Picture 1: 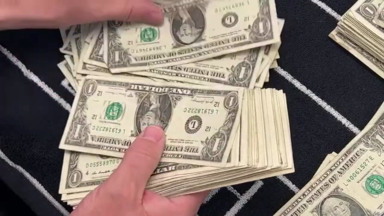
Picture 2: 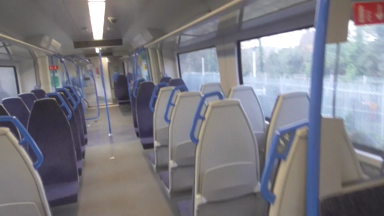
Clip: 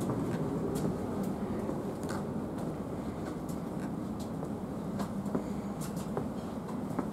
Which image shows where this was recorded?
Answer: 2